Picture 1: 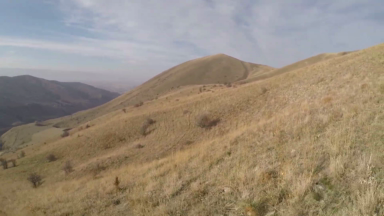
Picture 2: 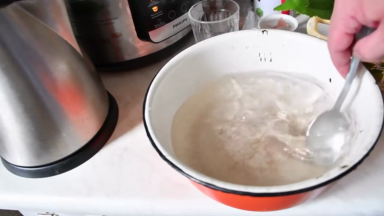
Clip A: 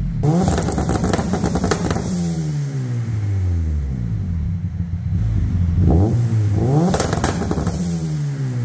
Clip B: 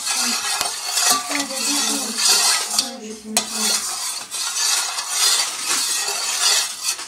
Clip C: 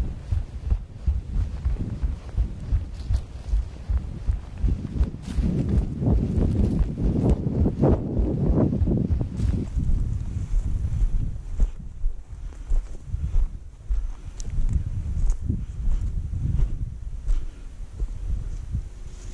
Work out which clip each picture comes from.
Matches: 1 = C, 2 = B